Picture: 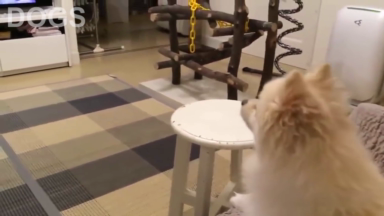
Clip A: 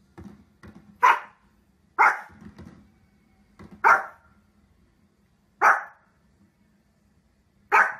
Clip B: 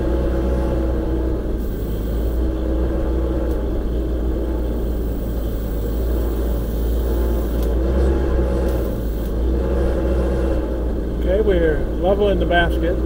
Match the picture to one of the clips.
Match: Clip A